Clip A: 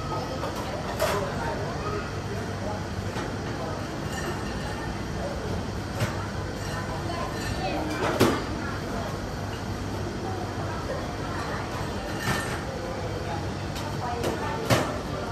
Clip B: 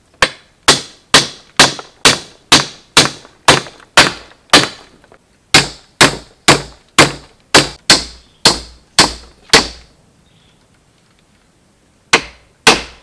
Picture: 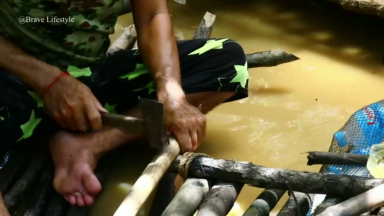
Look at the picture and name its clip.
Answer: B